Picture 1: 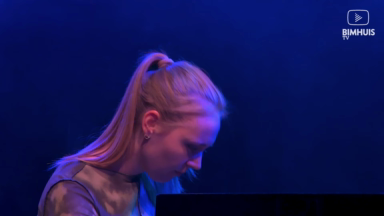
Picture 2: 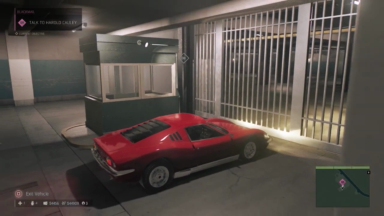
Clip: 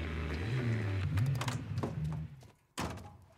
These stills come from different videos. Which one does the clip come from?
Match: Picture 2